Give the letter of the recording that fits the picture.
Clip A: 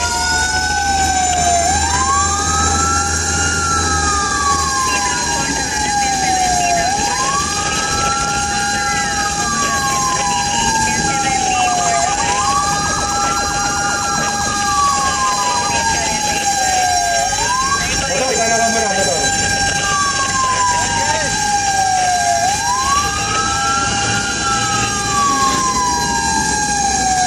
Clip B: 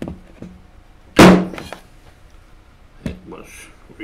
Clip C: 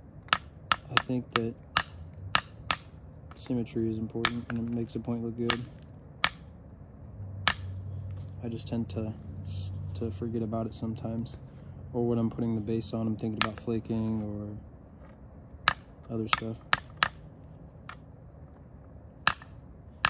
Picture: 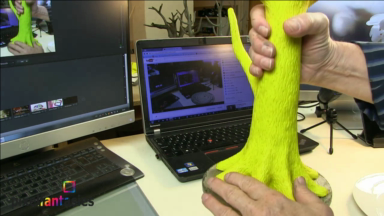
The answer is B